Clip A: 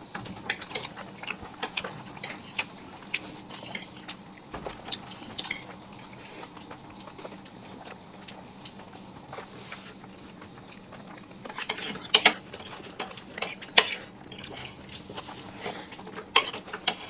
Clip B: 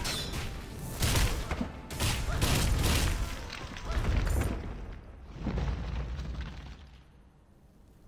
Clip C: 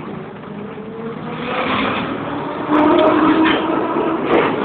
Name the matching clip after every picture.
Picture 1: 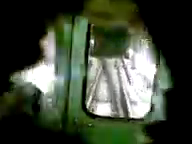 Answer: C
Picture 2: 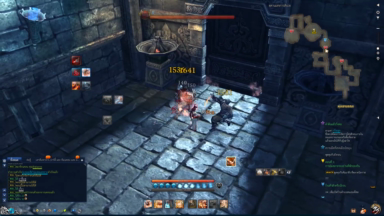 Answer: B